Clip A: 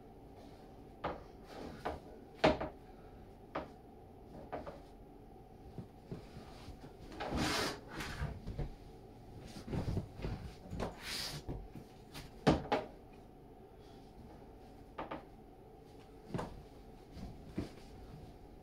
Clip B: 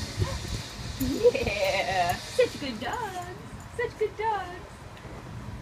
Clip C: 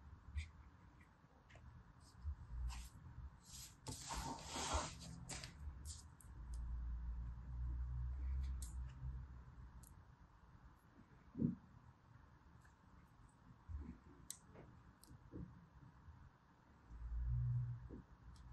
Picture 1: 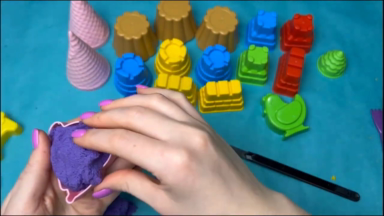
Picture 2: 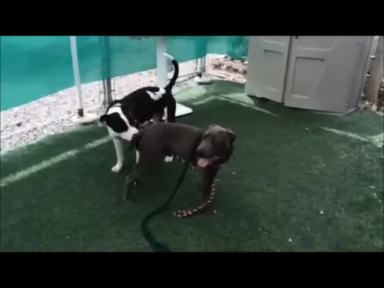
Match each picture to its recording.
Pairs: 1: C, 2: B